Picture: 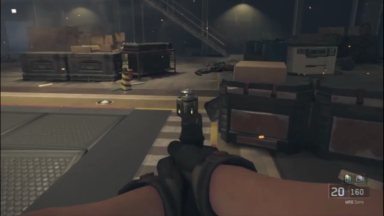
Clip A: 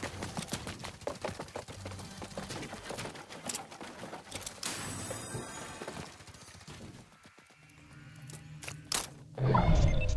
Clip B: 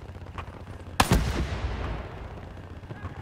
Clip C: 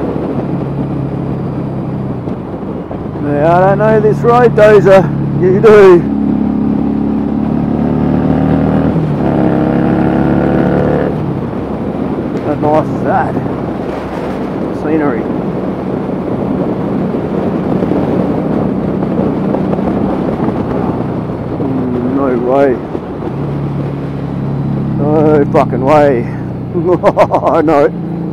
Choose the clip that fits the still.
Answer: B